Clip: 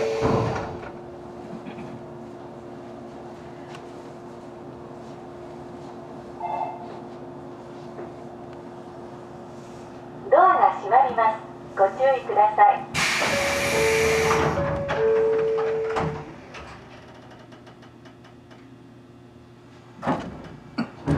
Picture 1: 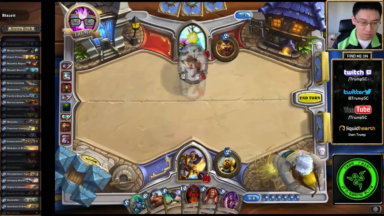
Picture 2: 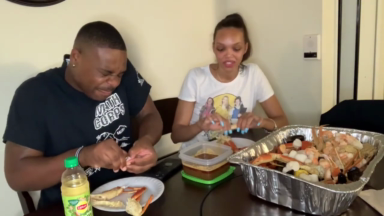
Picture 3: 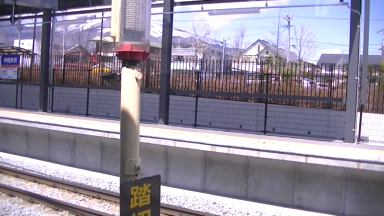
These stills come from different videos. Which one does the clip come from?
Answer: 3